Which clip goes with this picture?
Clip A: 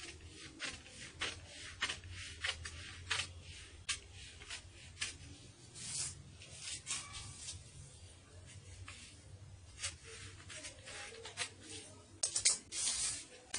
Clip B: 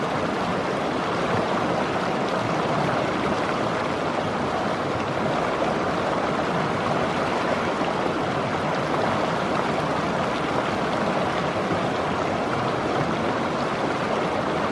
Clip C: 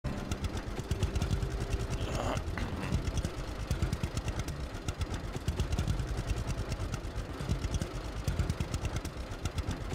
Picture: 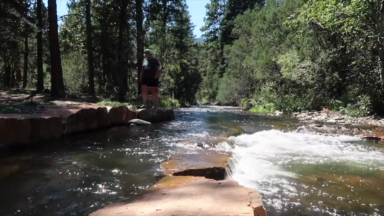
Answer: B